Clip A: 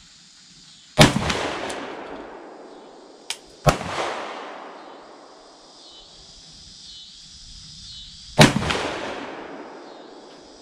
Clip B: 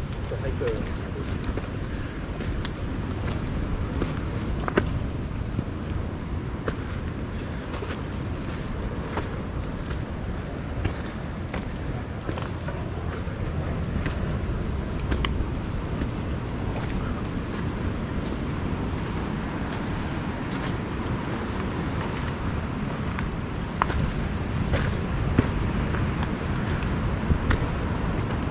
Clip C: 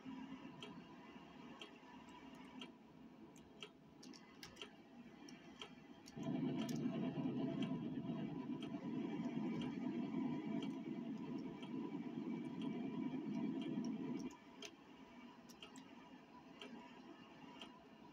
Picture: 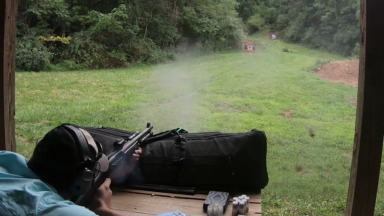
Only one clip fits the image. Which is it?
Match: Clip A